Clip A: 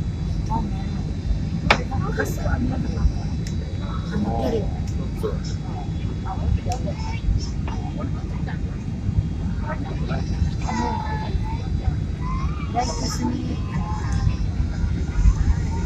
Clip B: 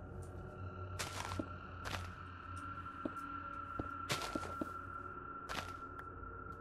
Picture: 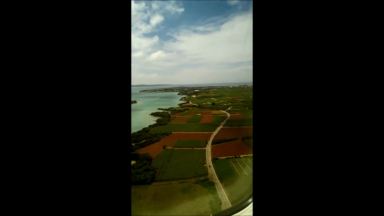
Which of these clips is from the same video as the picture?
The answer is A